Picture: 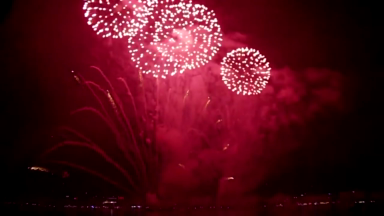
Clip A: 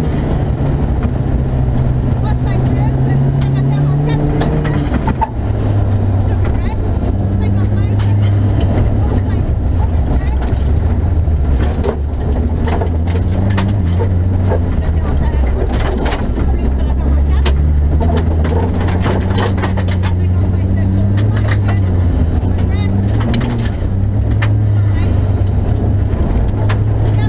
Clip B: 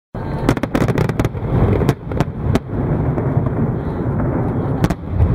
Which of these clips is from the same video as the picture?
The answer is B